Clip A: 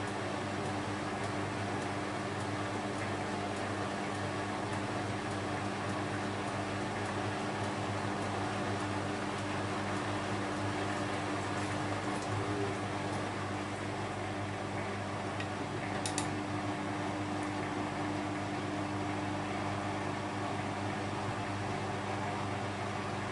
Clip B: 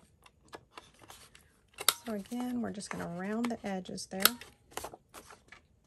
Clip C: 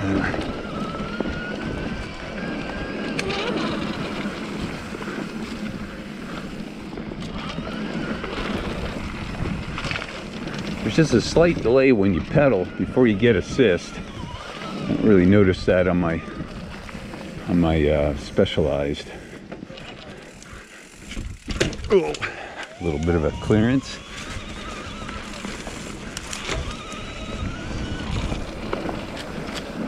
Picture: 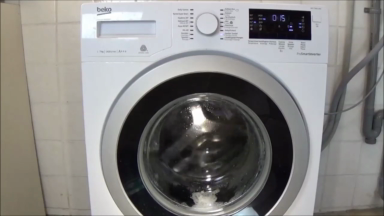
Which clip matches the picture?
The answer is A